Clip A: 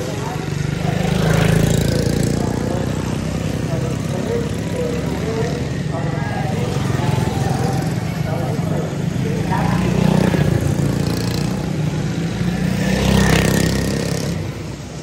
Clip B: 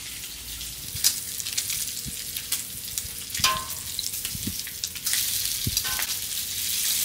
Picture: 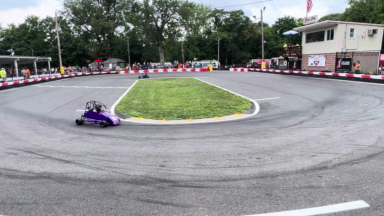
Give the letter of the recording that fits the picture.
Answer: A